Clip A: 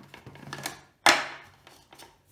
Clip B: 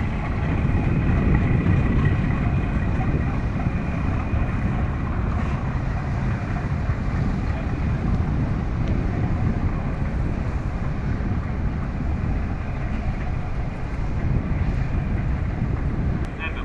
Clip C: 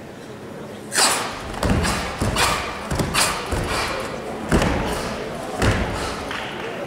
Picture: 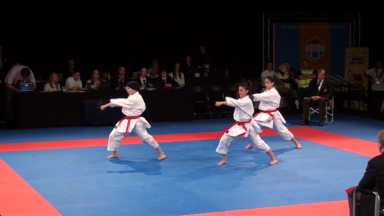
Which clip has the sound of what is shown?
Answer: C